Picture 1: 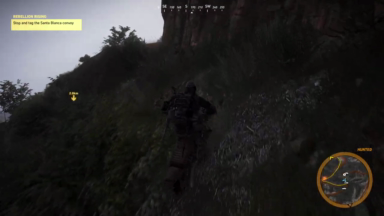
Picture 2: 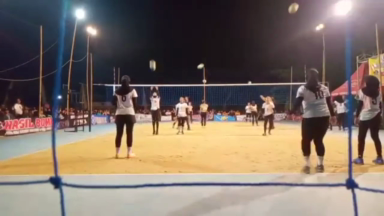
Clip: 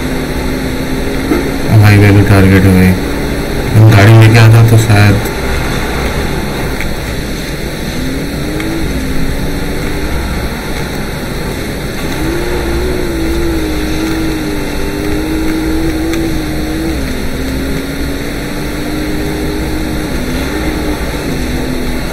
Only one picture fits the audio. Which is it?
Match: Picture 1